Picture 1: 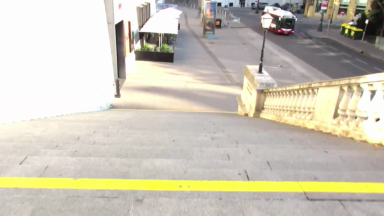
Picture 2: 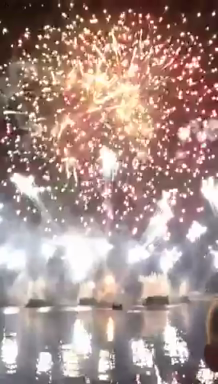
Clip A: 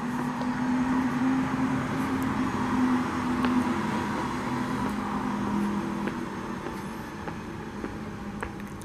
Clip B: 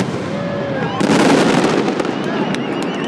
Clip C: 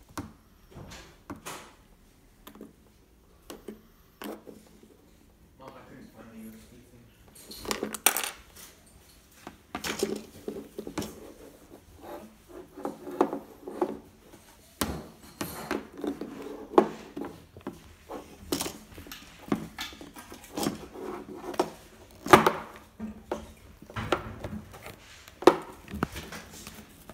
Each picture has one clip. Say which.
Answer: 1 A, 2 B